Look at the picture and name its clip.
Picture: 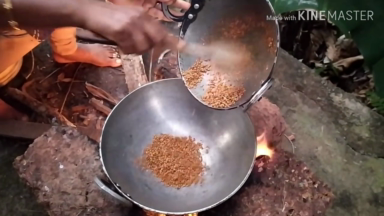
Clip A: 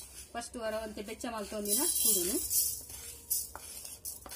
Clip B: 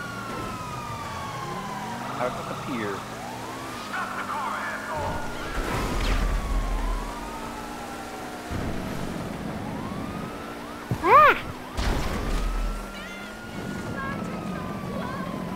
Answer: A